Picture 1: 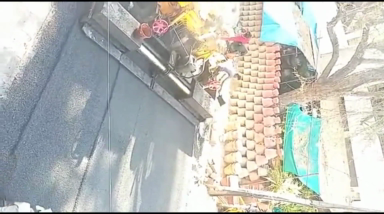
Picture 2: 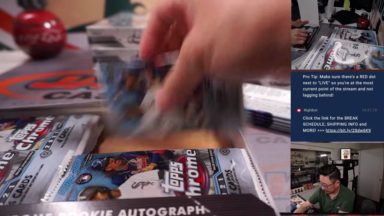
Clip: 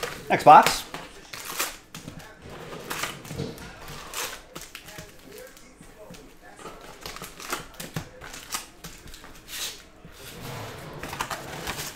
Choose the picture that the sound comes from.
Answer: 2